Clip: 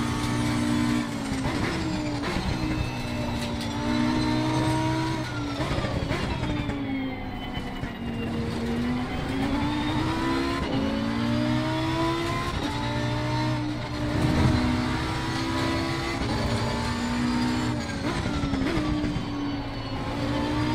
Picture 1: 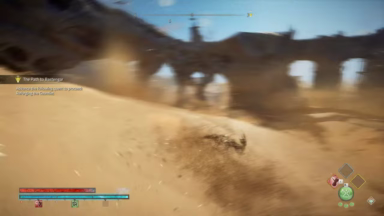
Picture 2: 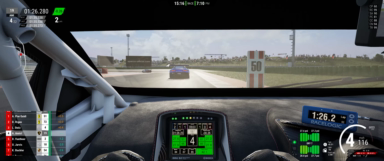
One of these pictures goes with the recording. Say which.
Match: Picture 2